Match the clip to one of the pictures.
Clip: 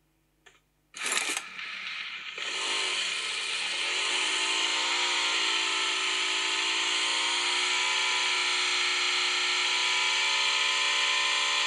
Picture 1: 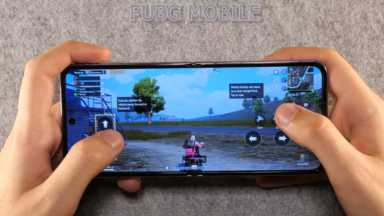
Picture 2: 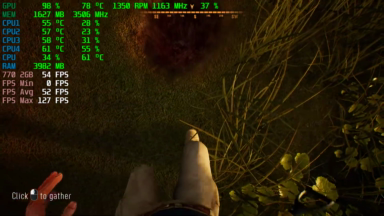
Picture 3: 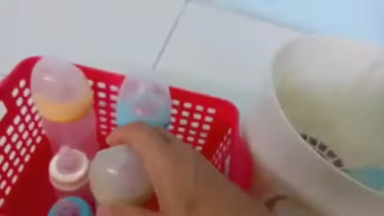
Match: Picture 1